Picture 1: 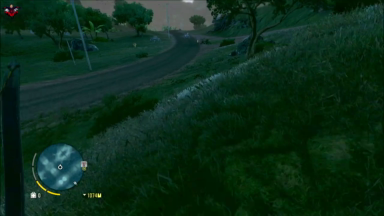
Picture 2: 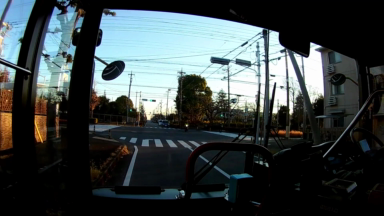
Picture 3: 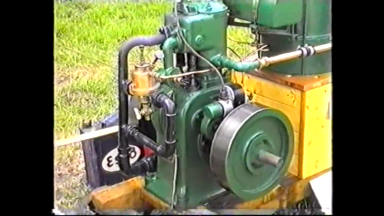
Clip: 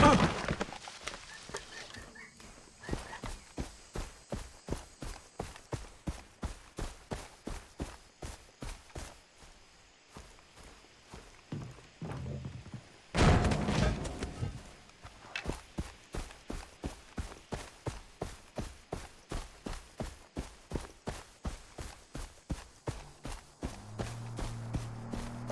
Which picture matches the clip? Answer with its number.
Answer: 1